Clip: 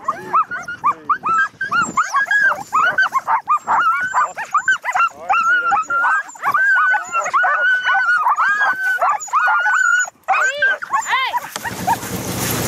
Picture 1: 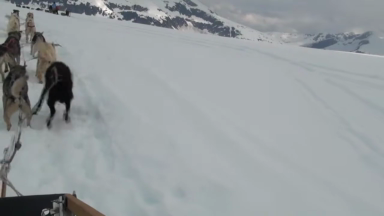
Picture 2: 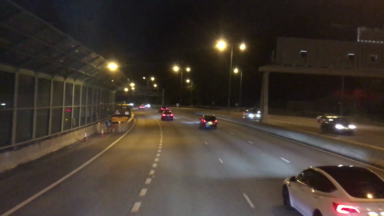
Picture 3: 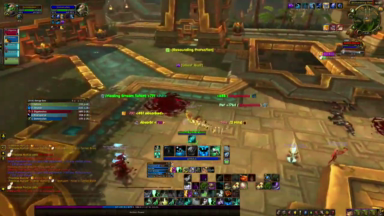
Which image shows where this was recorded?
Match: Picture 1